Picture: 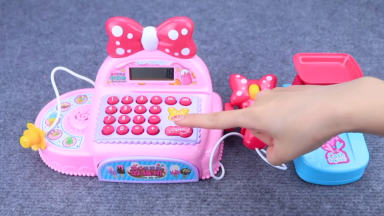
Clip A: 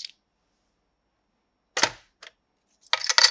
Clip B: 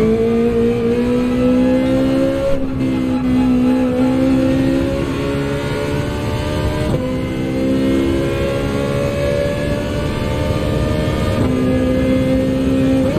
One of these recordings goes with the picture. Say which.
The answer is A